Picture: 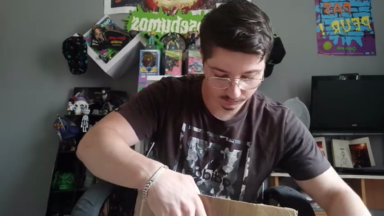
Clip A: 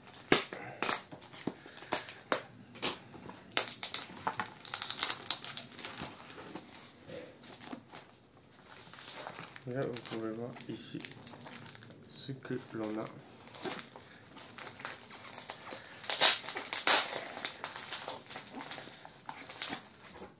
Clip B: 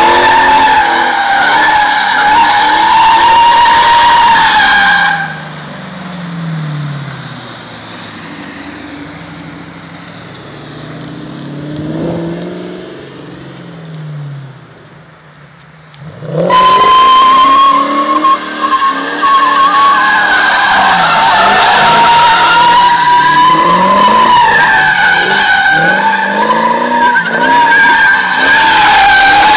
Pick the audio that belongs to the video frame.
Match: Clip A